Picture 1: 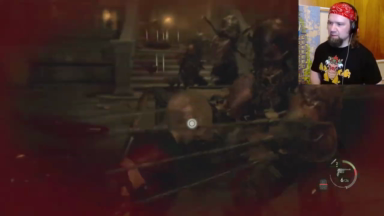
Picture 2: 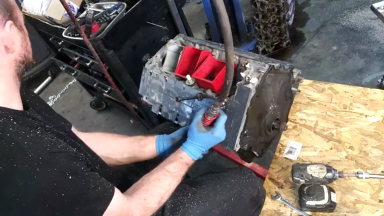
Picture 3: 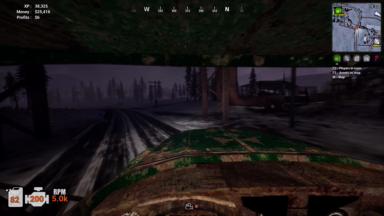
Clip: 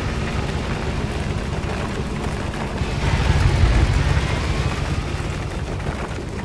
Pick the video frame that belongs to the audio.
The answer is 3